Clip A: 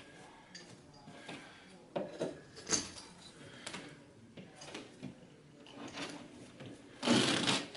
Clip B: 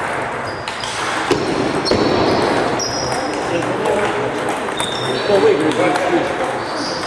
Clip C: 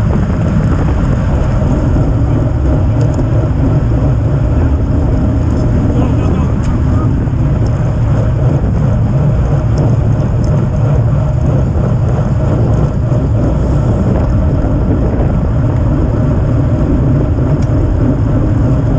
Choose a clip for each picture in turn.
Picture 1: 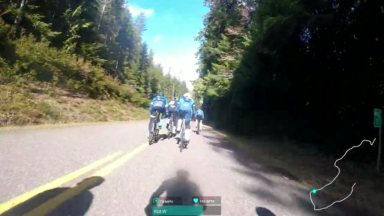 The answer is C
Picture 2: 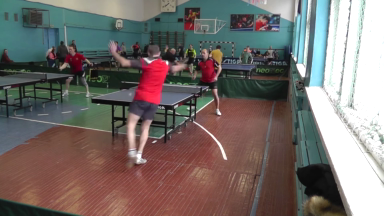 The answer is B